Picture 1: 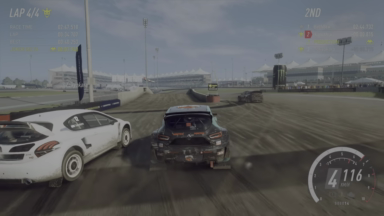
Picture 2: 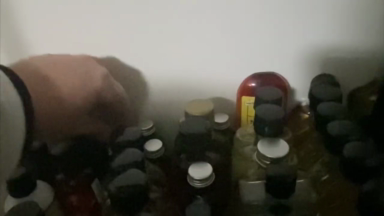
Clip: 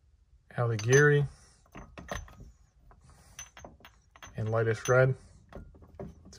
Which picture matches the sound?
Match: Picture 2